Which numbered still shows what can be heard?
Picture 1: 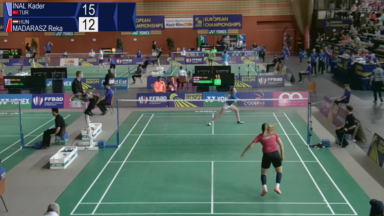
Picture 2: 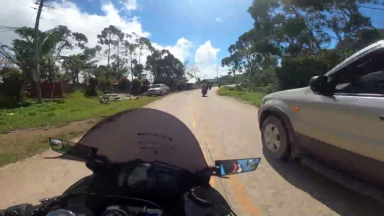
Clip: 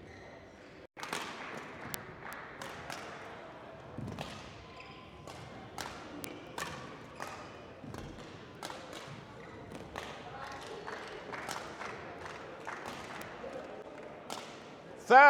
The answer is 1